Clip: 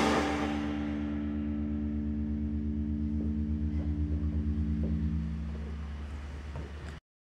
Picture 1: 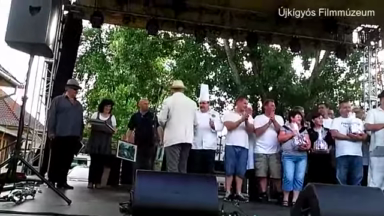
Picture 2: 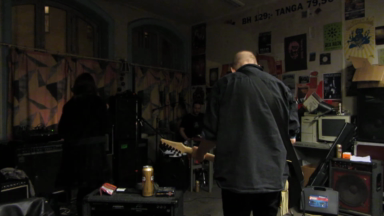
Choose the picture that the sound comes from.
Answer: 2